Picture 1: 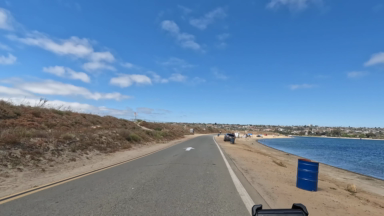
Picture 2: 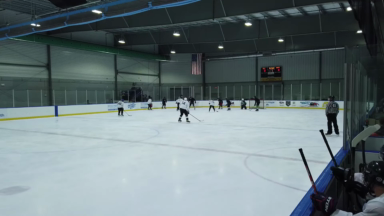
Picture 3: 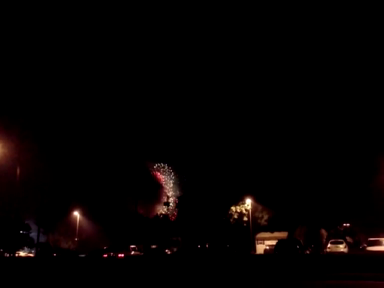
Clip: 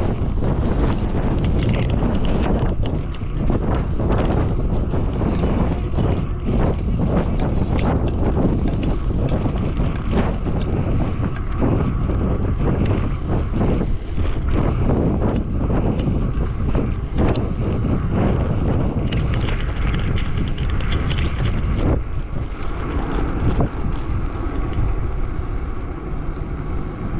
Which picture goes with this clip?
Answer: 1